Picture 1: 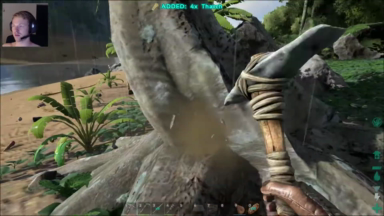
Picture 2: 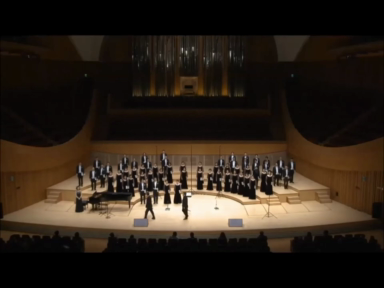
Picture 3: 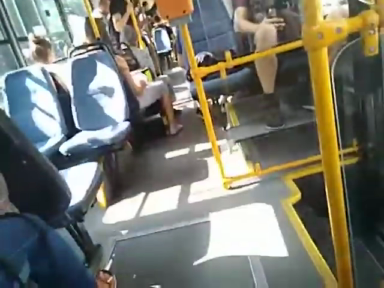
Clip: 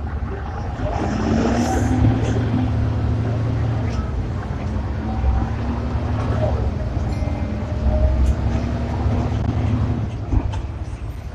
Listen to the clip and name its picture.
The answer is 3